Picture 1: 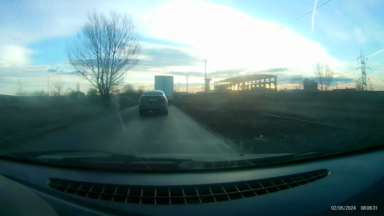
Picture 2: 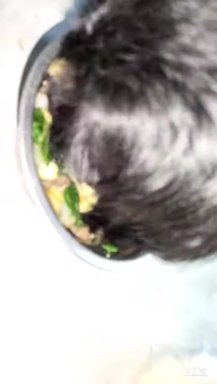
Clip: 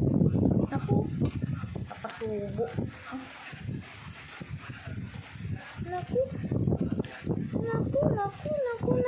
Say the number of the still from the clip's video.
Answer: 2